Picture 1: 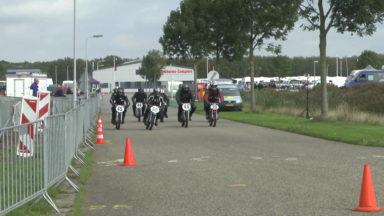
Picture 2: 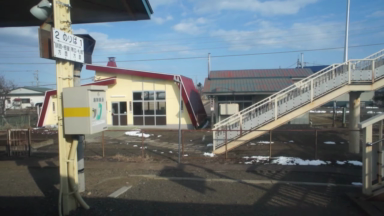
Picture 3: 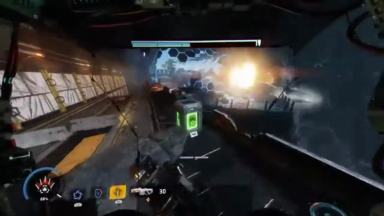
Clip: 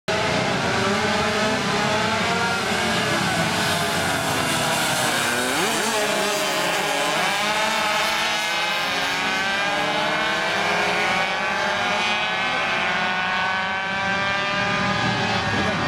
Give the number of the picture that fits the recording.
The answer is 1